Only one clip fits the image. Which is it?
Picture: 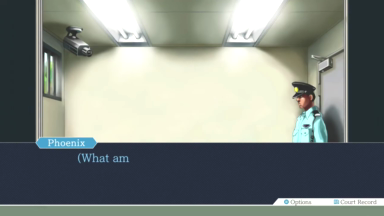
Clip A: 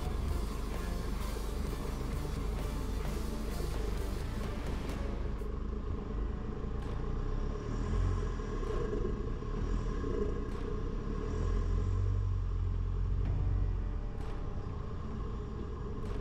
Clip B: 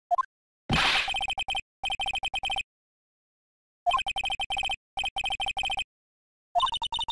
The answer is B